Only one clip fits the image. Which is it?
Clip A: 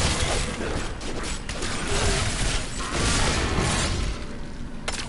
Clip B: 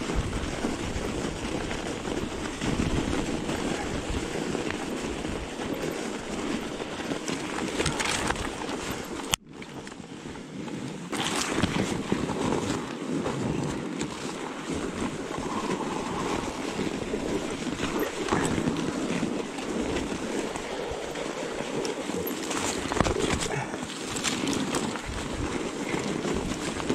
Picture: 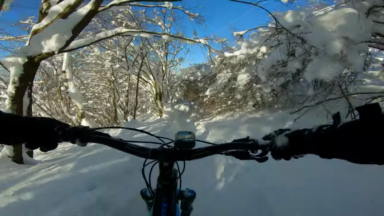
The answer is B